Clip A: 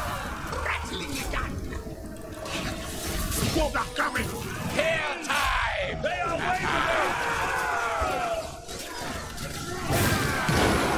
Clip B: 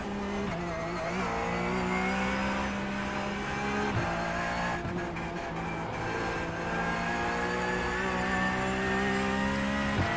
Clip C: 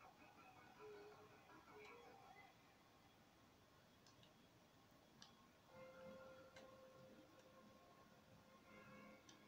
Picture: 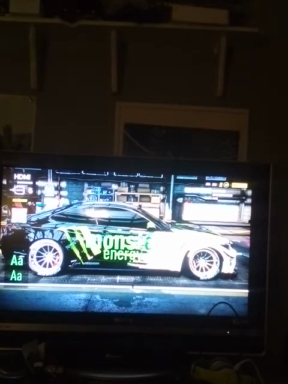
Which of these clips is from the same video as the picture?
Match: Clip C